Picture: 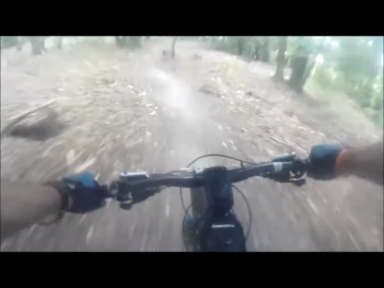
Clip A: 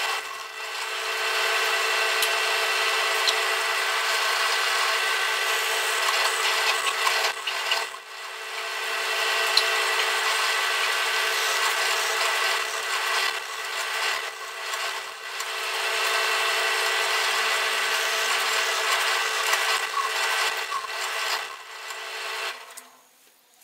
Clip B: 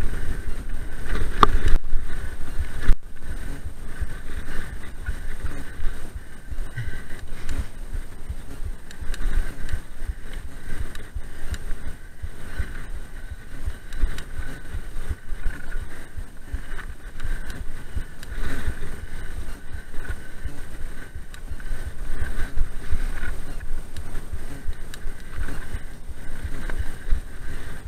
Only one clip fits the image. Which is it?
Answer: B